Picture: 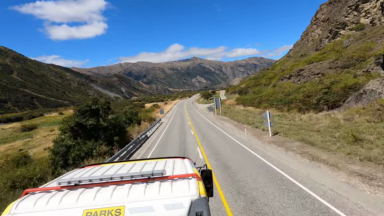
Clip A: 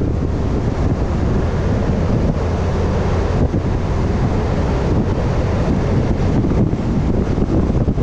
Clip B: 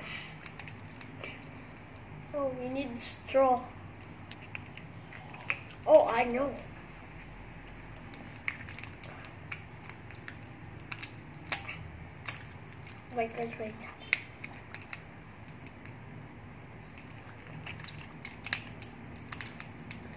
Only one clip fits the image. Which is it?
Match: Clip A